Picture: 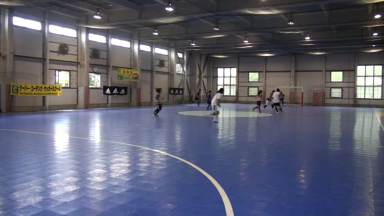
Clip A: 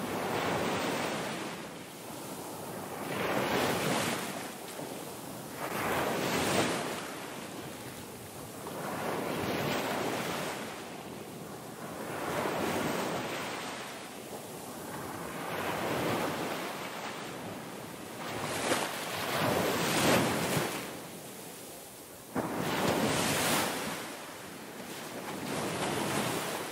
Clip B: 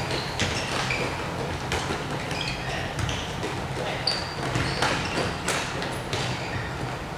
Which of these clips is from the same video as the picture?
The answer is B